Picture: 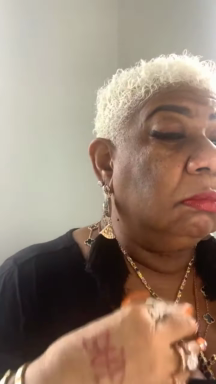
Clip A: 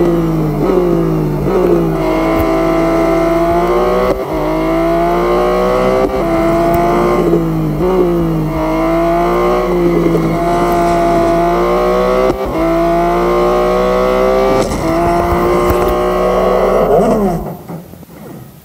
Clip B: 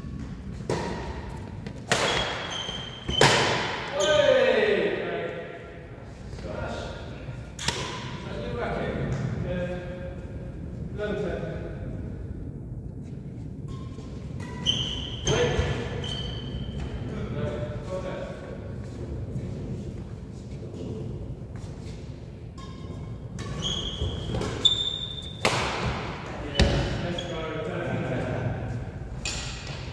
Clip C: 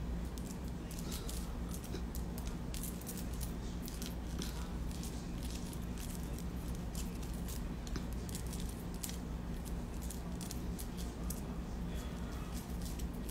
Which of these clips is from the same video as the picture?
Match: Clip C